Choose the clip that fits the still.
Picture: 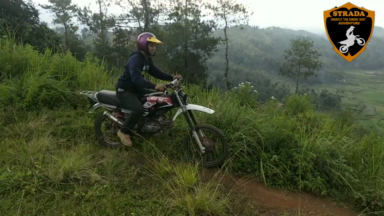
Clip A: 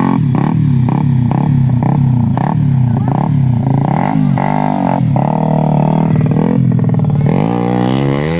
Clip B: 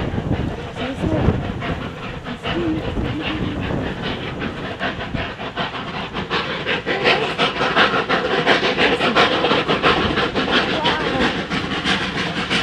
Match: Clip A